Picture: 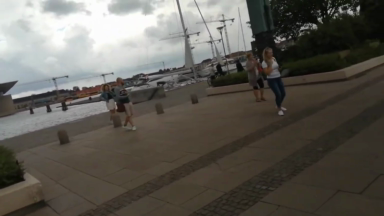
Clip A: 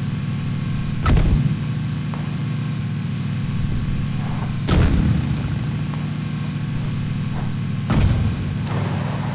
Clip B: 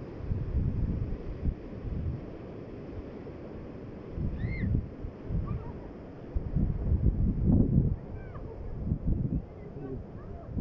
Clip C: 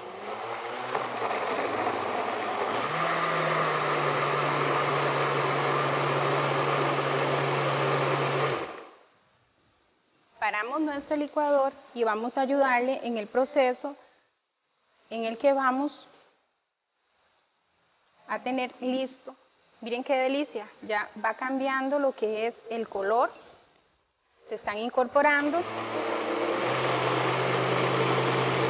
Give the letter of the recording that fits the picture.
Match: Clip B